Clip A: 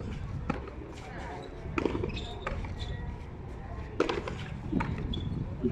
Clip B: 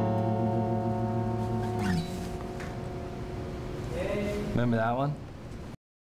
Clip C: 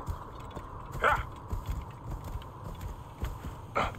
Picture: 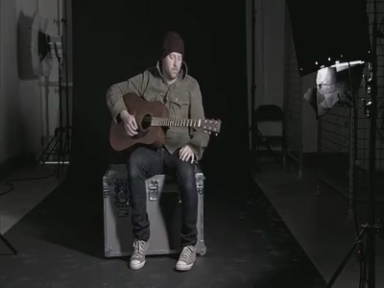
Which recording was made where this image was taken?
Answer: B